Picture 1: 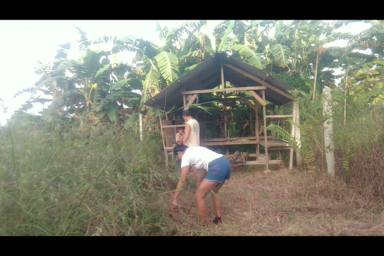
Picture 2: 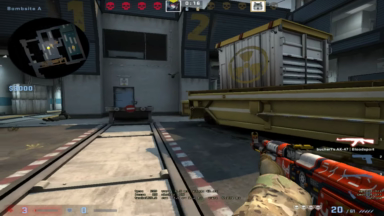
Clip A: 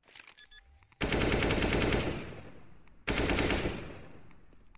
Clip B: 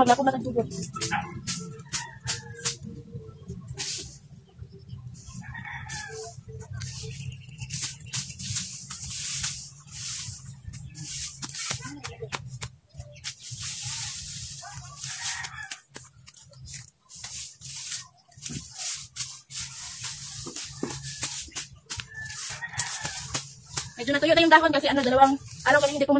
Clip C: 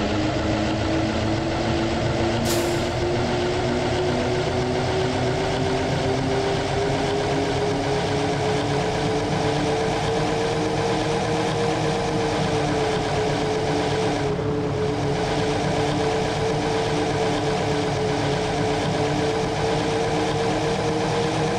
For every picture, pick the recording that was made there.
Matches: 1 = B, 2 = A